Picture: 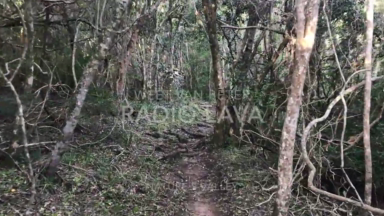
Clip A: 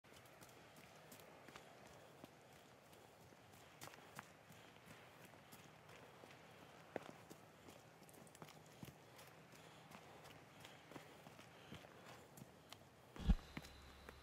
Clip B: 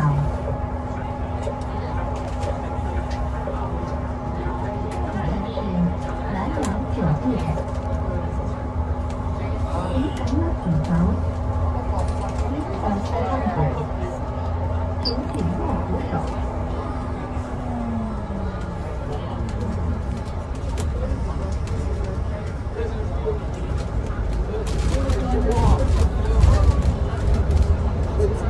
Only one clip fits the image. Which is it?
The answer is A